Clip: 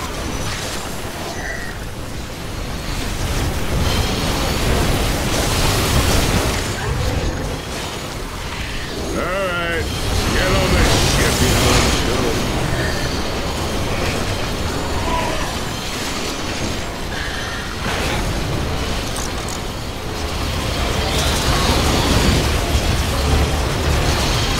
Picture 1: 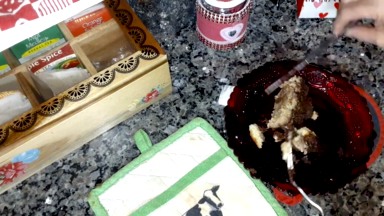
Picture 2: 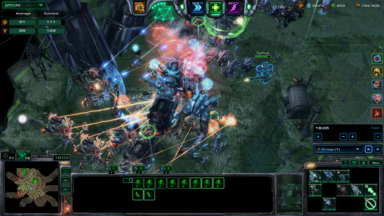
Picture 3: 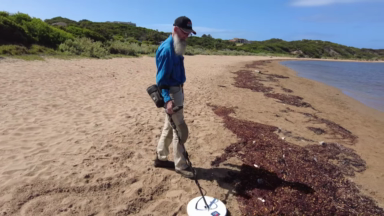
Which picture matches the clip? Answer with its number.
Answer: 2